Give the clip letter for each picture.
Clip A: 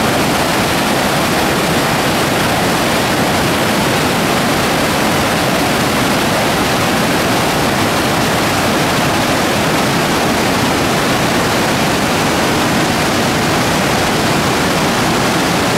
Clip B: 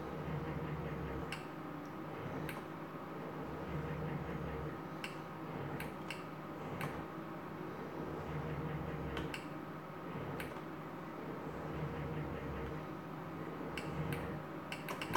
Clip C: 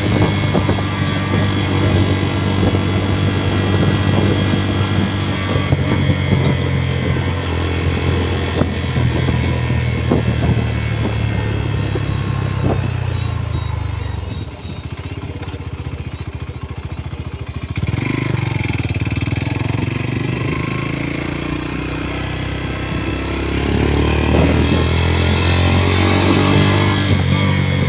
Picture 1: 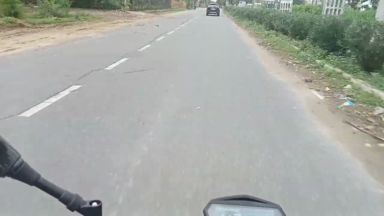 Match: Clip C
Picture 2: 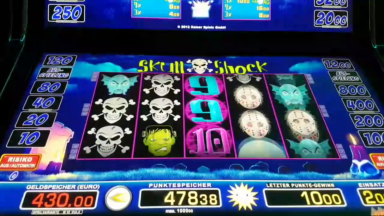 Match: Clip B